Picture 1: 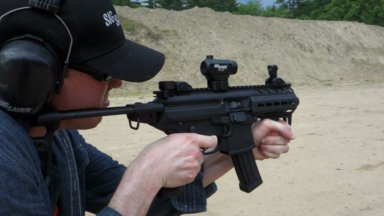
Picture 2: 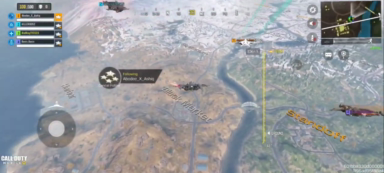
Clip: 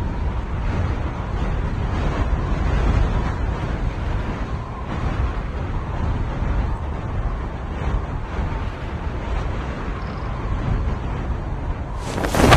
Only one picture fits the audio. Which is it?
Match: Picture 2